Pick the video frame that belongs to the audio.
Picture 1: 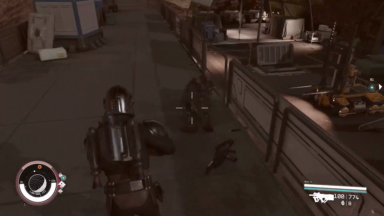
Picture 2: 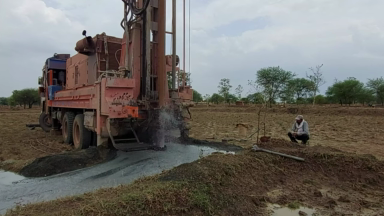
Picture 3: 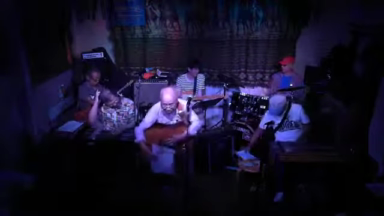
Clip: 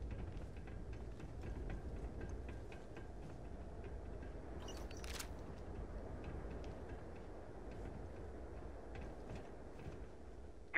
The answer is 1